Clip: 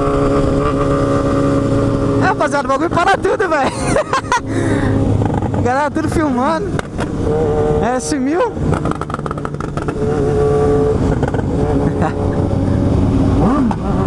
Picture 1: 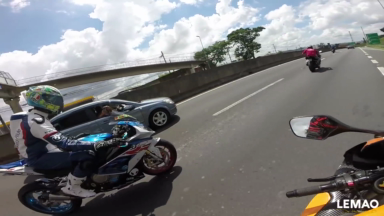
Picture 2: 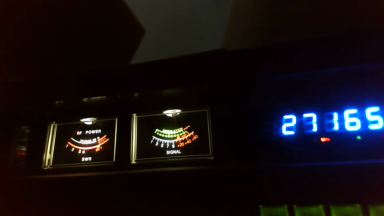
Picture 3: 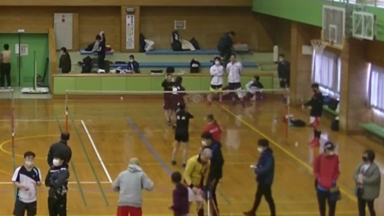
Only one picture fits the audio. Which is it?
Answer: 1